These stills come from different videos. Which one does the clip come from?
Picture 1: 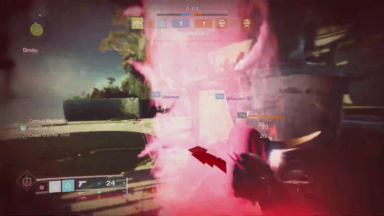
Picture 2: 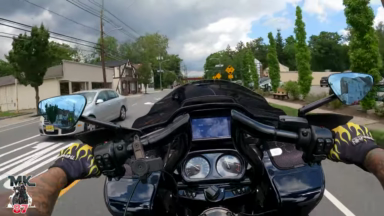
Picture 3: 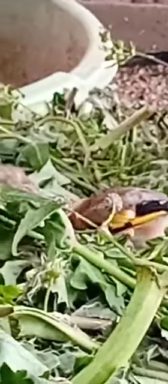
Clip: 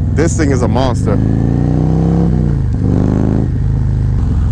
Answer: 2